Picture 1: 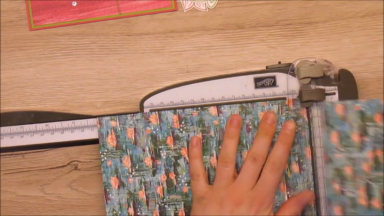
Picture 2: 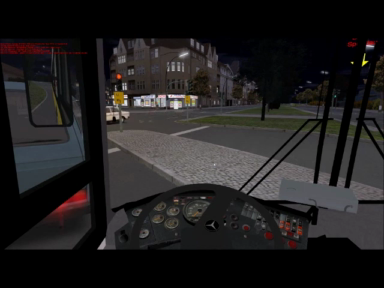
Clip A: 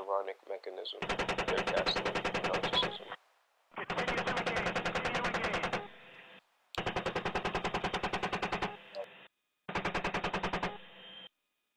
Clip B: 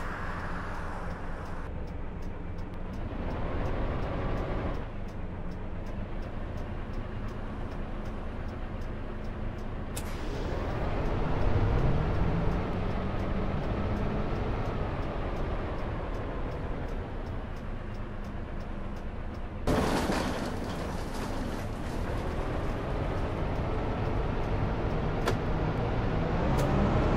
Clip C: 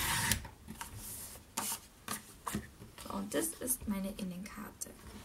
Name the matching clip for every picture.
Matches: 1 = C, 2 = B